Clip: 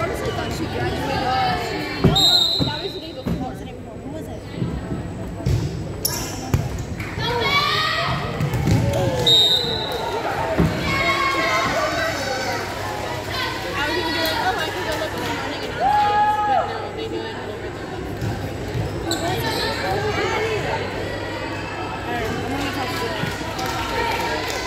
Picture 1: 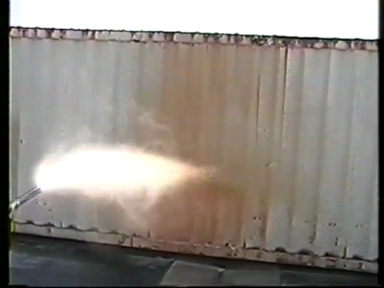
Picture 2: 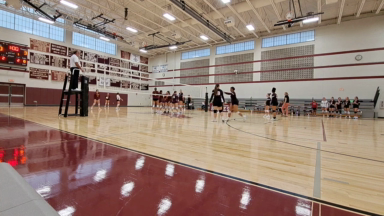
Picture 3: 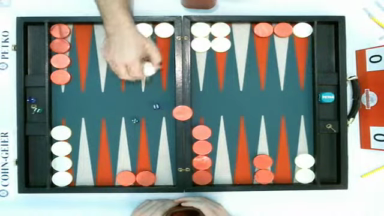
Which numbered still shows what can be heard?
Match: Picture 2